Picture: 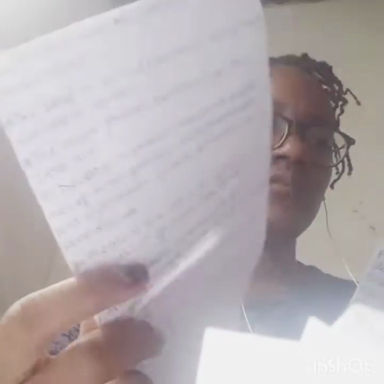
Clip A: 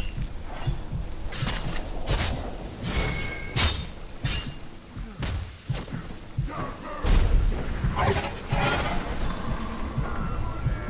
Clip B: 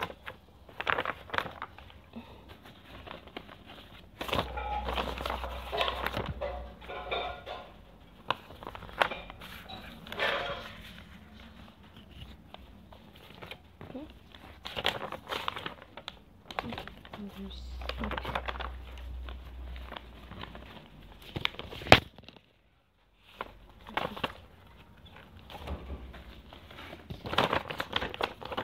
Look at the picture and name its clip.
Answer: B